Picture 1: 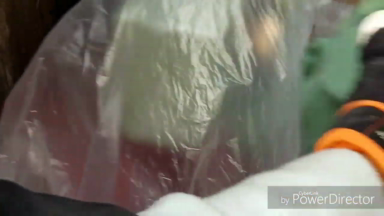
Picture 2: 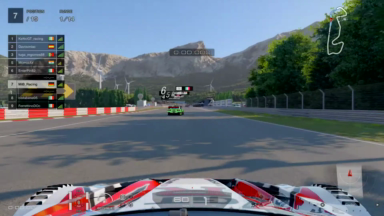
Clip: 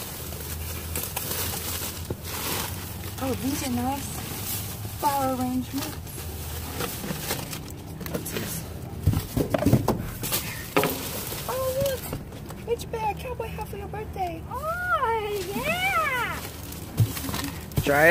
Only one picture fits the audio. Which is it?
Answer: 1